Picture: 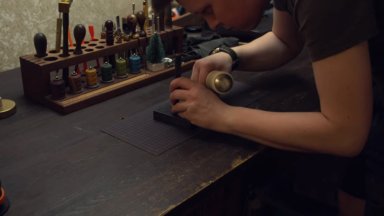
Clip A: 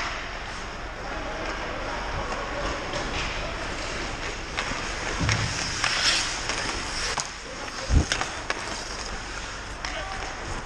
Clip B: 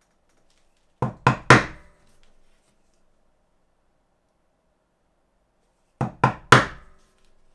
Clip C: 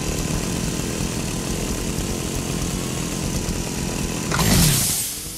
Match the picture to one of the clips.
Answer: B